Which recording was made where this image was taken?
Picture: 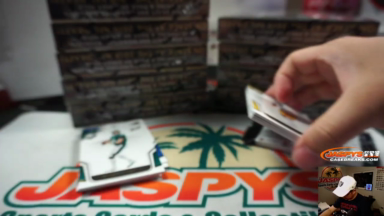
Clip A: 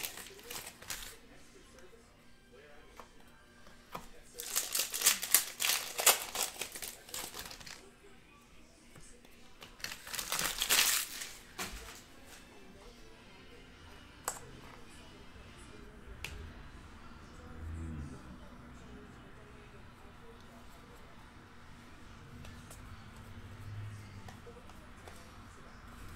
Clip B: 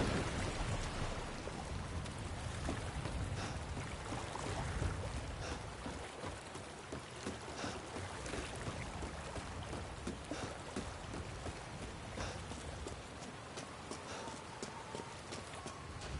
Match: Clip A